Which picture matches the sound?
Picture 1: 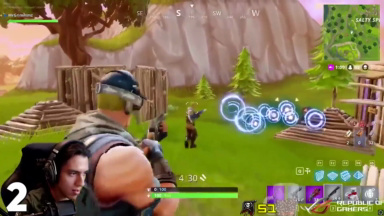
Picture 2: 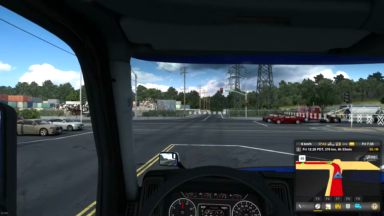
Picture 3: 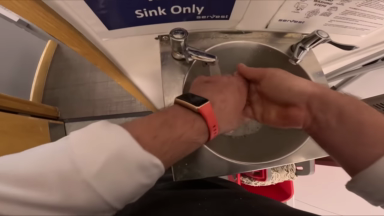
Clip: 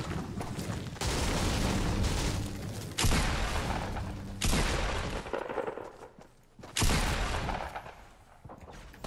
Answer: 1